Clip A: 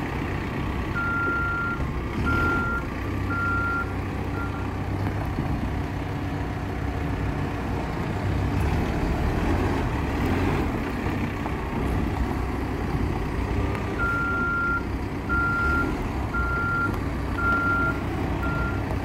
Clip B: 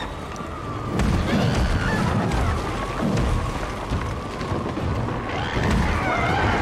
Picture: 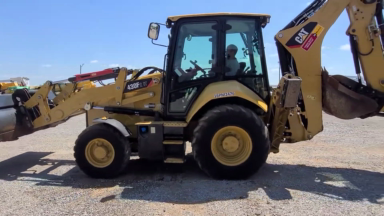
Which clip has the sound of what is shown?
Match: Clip A